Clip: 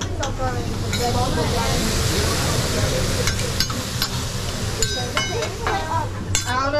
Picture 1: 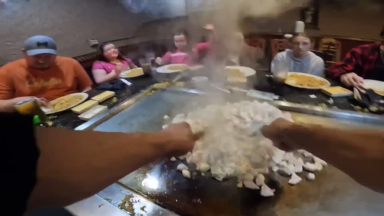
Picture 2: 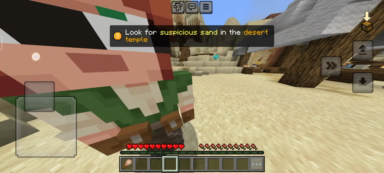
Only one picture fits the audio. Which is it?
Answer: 1